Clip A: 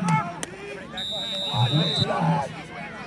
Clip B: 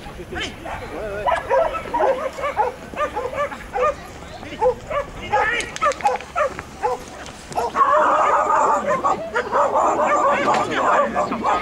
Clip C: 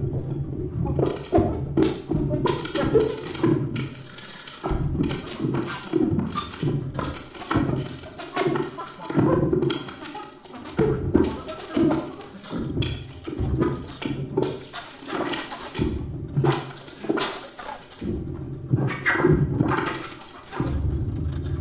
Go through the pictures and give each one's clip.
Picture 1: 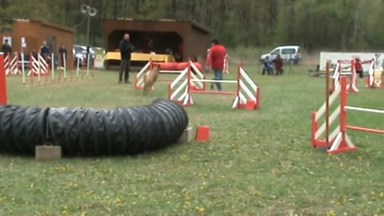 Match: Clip B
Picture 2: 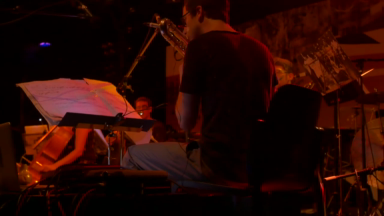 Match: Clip C